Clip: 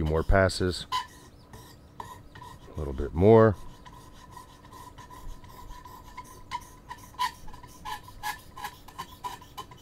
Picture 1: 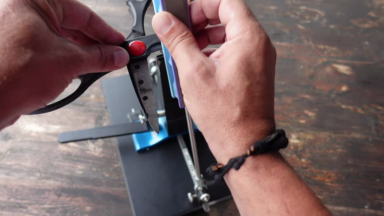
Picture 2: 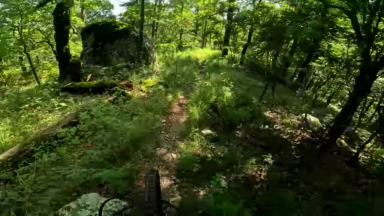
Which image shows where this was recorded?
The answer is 1